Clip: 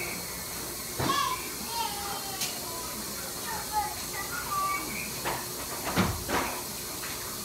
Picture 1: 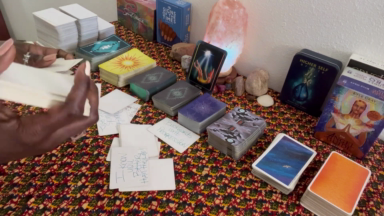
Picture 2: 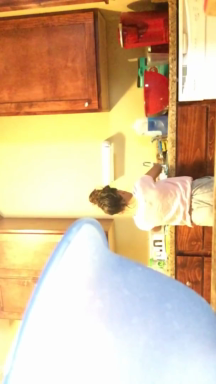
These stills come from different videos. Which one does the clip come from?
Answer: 2